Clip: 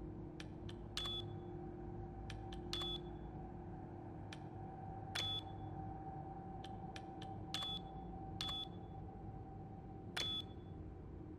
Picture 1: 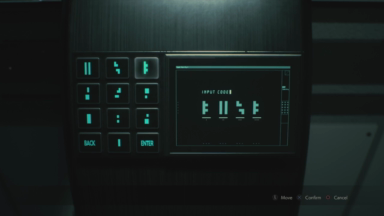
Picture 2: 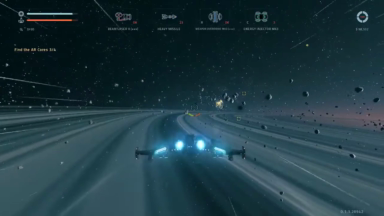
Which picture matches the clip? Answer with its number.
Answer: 1